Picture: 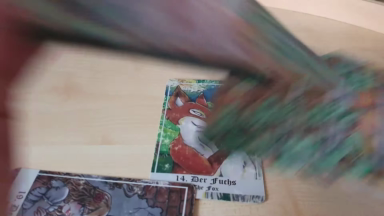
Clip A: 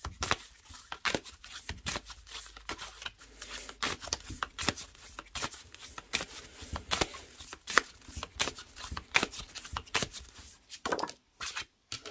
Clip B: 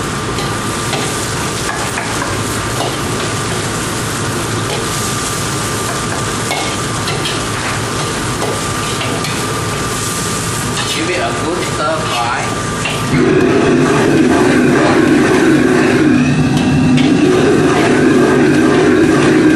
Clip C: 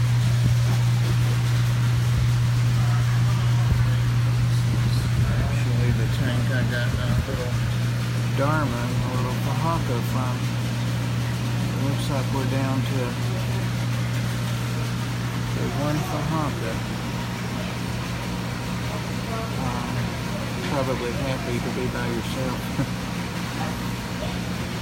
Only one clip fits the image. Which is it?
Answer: A